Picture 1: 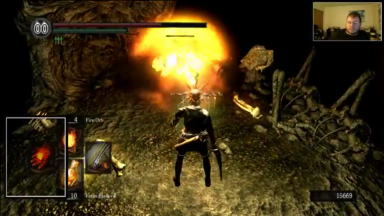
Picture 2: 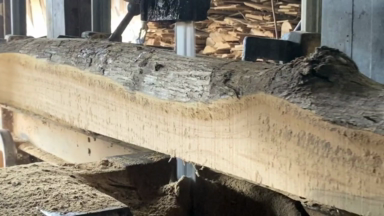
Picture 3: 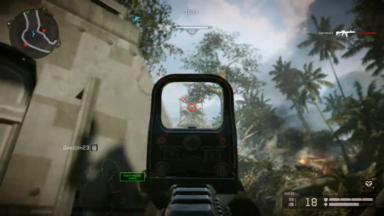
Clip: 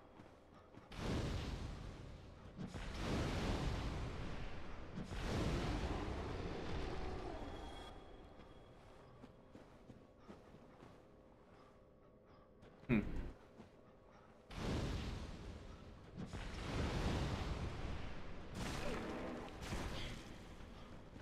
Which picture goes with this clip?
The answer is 1